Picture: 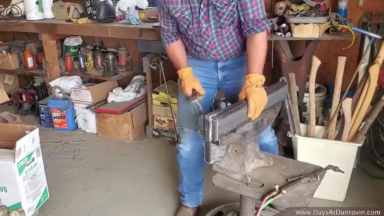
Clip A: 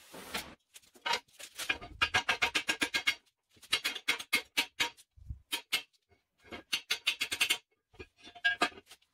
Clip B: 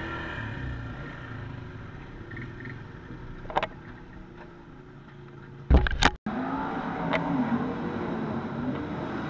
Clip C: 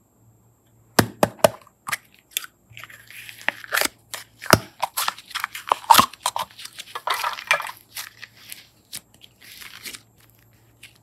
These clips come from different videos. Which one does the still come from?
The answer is A